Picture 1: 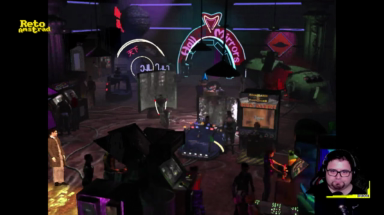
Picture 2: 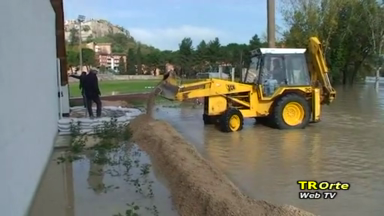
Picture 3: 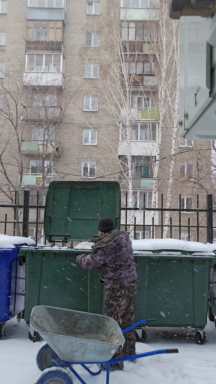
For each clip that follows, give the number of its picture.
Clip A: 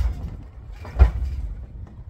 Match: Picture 3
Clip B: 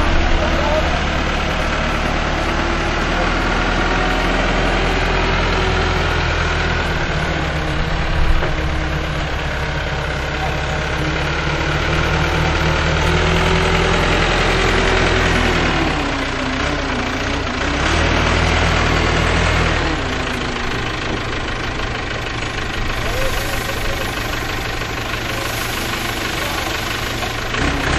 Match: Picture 2